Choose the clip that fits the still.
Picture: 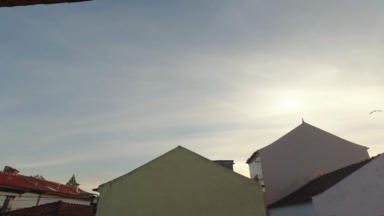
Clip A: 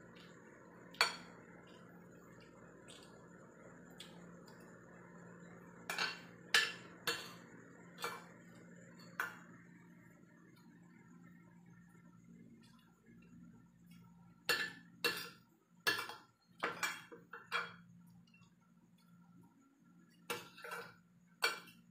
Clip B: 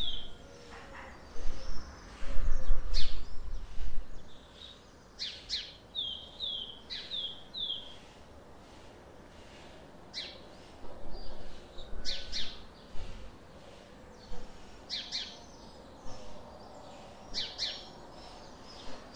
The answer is B